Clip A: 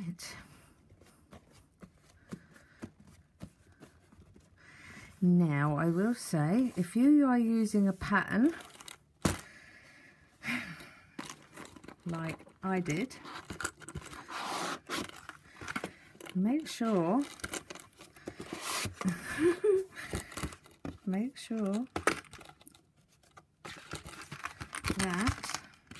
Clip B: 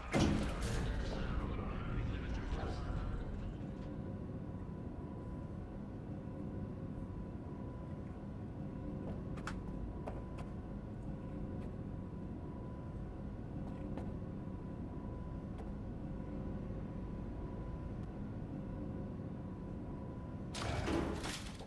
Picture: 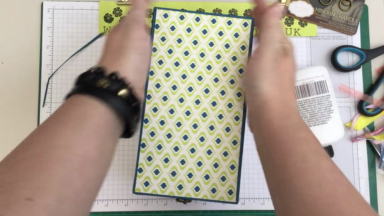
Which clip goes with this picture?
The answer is A